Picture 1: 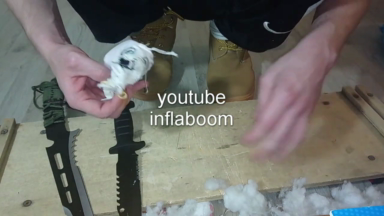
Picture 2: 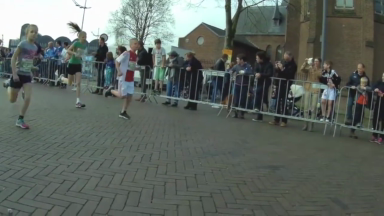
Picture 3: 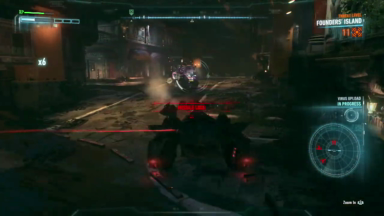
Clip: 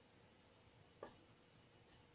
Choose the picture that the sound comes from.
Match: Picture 1